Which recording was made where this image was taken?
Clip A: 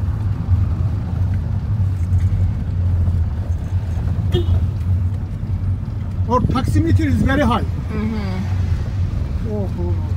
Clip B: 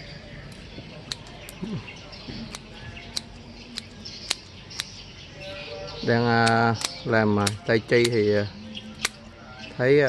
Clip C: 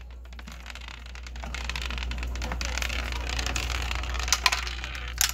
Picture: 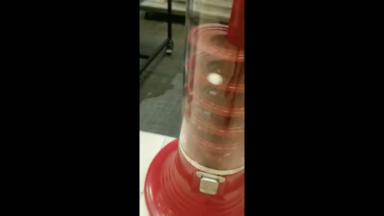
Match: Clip C